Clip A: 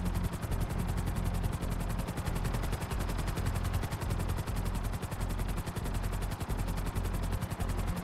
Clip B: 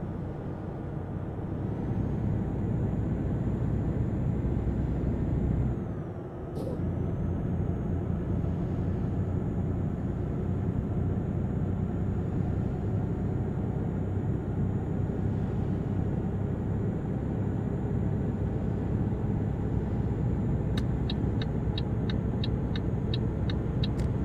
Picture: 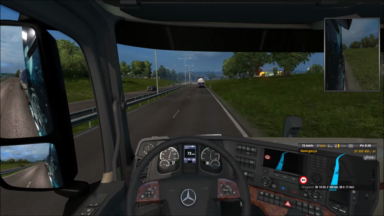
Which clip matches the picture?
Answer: B